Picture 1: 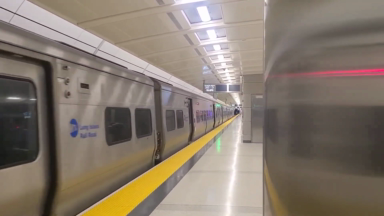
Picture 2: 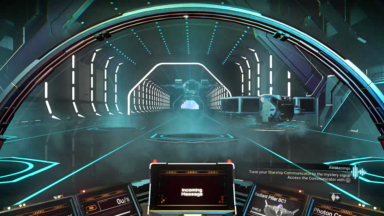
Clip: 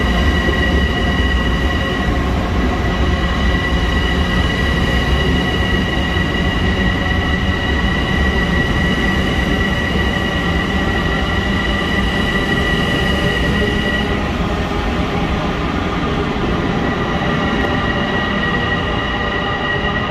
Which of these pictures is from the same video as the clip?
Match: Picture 1